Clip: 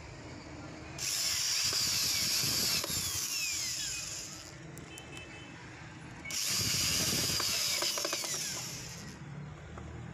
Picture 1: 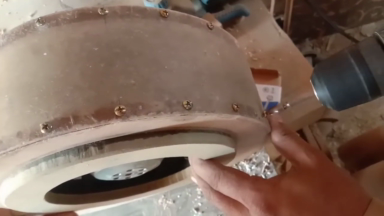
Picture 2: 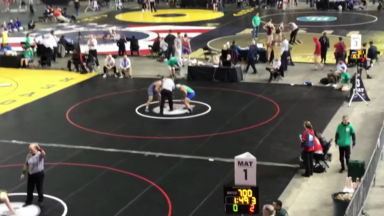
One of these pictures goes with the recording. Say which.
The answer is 1